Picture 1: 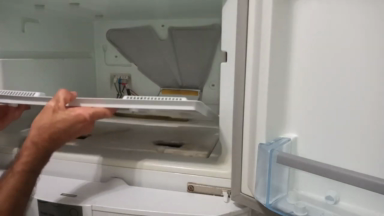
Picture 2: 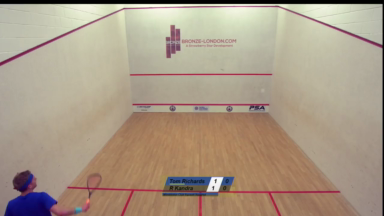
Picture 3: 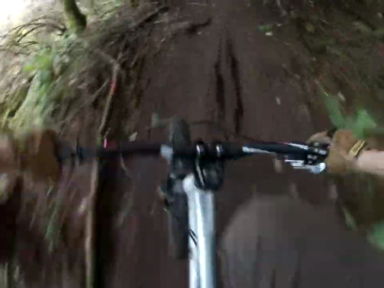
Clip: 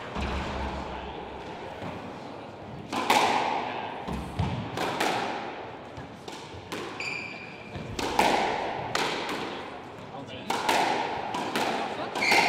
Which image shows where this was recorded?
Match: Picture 2